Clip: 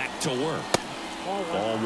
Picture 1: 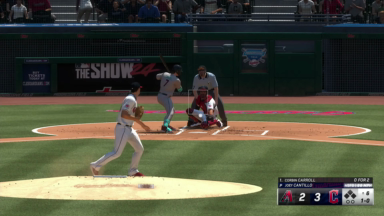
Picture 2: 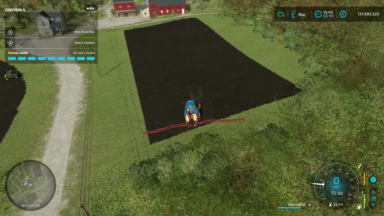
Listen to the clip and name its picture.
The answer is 1